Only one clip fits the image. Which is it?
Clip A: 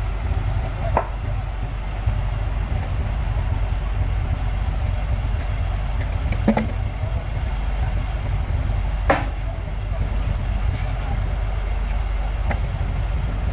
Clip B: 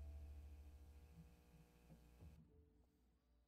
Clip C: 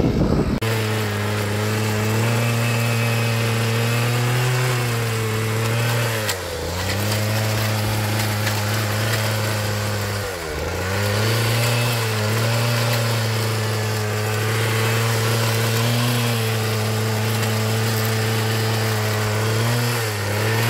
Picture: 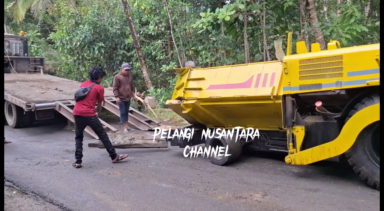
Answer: A